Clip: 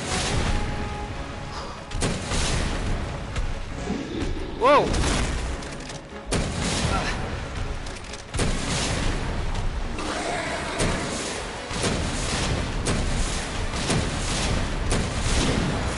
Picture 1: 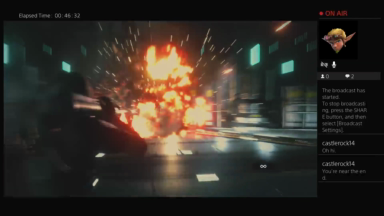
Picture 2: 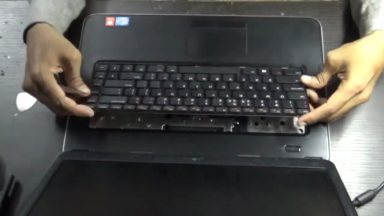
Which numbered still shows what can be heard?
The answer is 1